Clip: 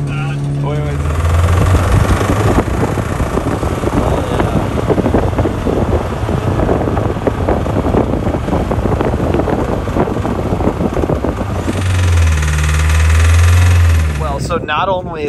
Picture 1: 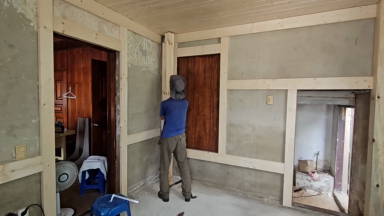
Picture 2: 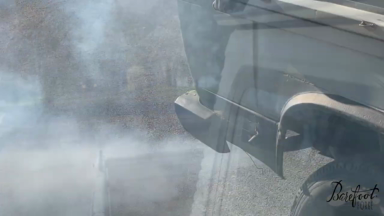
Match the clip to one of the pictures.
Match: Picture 2